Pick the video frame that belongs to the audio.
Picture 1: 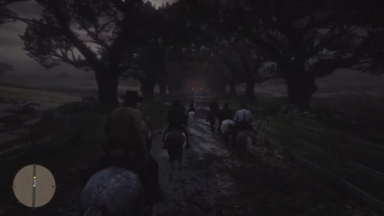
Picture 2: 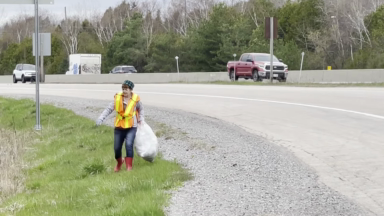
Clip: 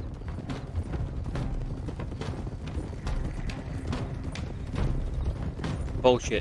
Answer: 1